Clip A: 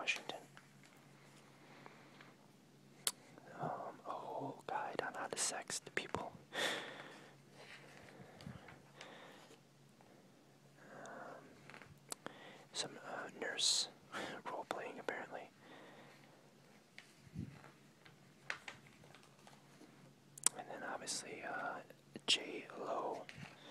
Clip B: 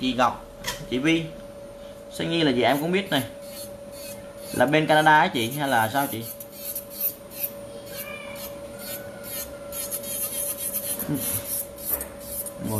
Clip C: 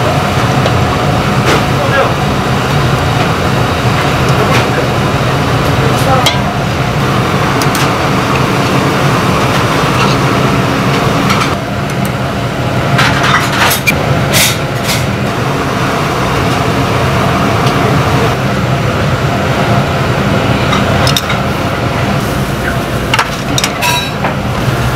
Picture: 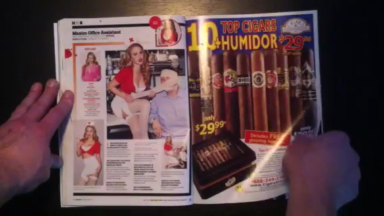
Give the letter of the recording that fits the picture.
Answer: A